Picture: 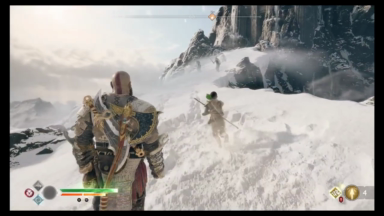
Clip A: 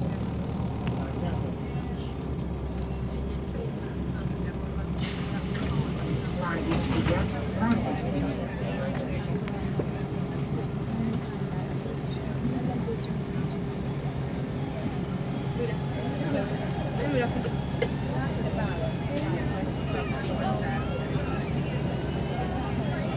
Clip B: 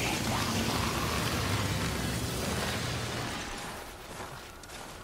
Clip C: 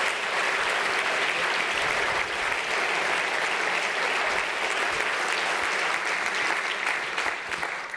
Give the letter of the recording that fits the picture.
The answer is B